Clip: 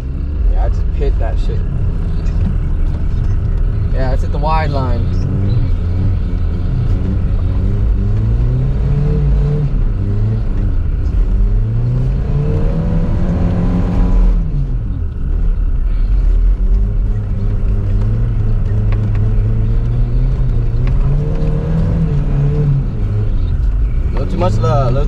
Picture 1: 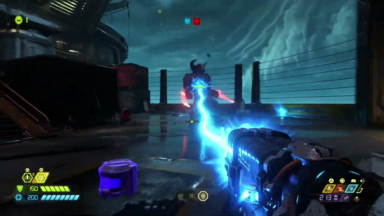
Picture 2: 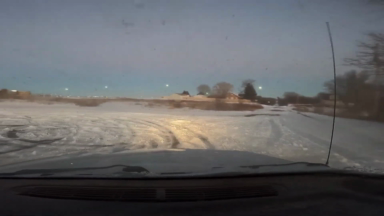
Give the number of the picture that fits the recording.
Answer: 2